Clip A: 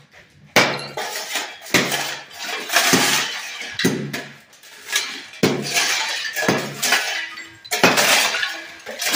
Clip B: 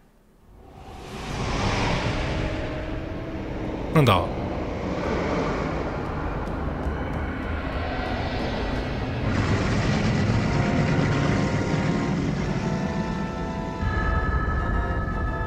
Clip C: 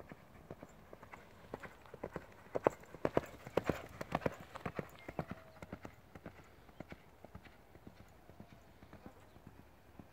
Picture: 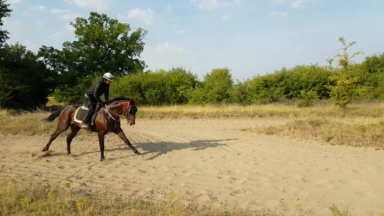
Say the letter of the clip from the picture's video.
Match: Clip C